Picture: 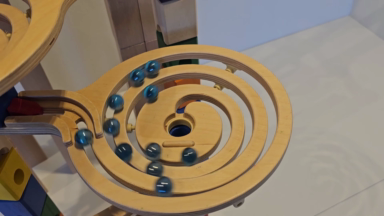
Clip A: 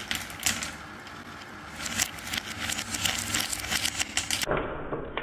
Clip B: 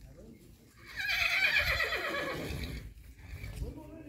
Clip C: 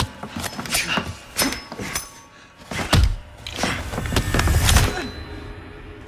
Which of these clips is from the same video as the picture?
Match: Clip A